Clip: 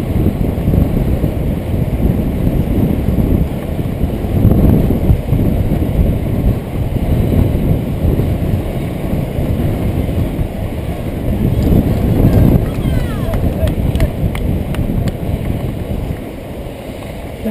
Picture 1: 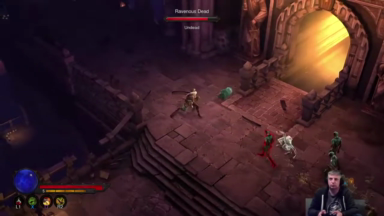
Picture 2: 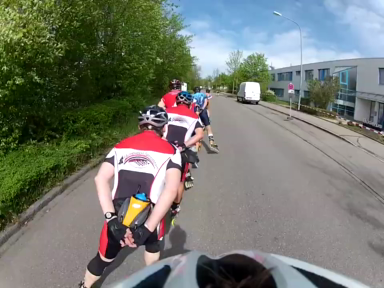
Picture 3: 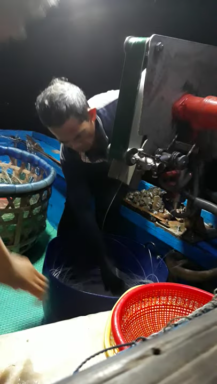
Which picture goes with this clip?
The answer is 2